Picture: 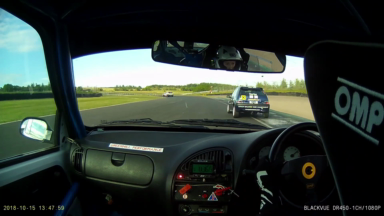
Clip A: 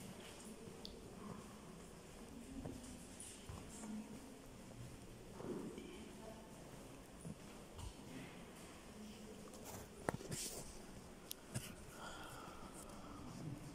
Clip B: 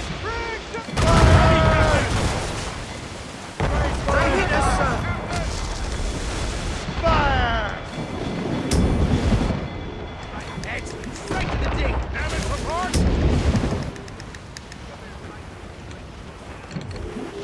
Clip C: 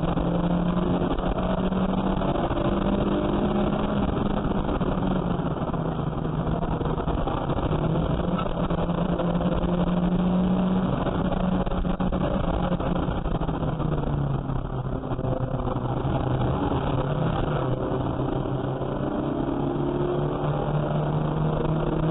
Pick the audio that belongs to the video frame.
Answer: C